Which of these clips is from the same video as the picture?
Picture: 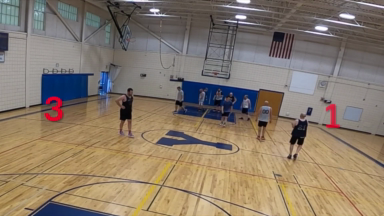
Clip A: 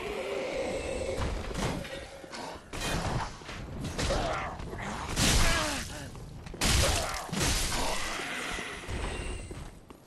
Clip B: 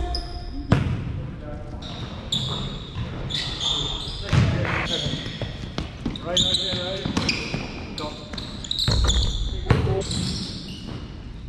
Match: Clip B